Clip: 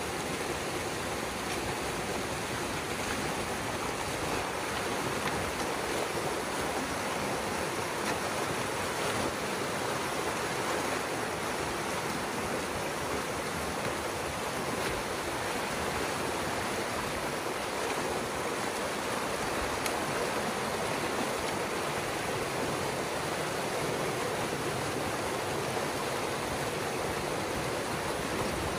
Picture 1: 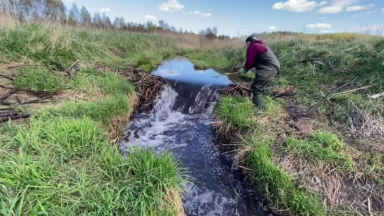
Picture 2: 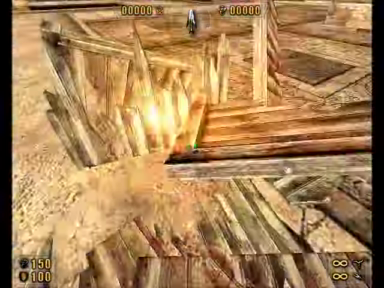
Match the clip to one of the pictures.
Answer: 1